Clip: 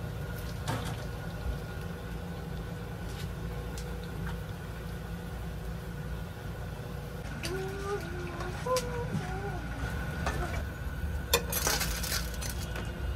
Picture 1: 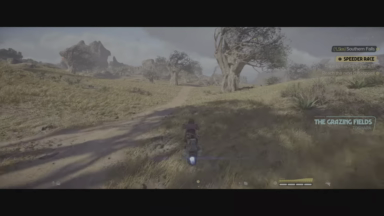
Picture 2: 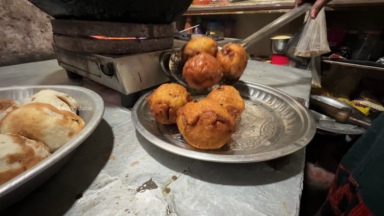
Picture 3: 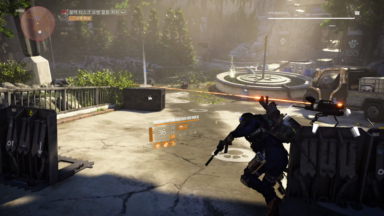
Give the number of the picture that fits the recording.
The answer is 2